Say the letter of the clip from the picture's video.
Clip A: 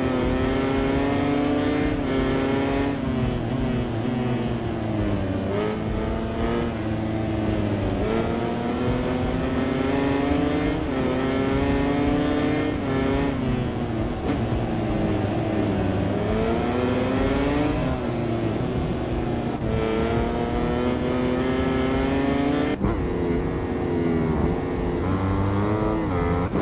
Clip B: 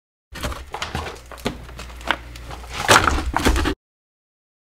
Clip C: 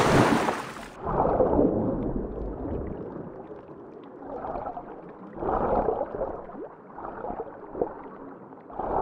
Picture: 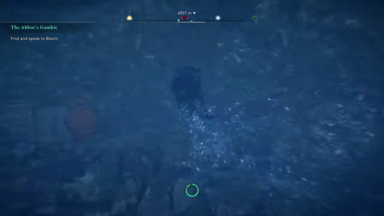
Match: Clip C